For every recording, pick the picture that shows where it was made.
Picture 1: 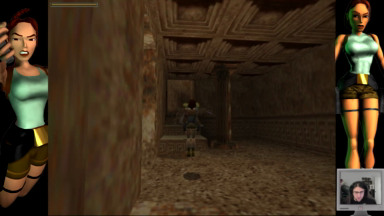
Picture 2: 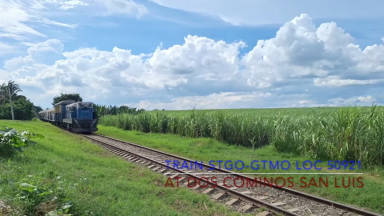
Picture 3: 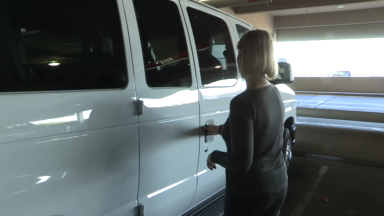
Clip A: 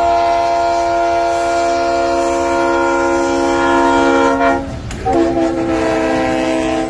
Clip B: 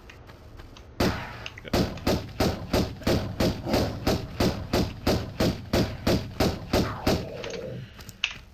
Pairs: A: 2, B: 1